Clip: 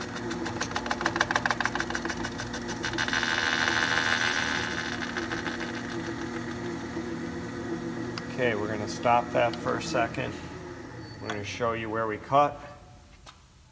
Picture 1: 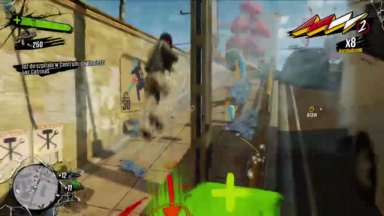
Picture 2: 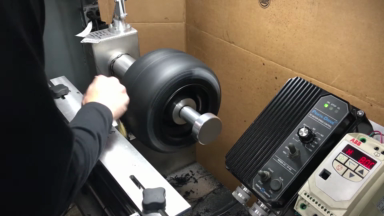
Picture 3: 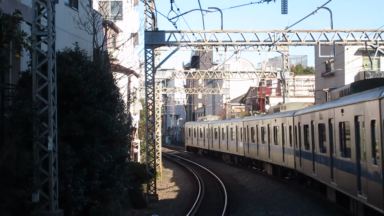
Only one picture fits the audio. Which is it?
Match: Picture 2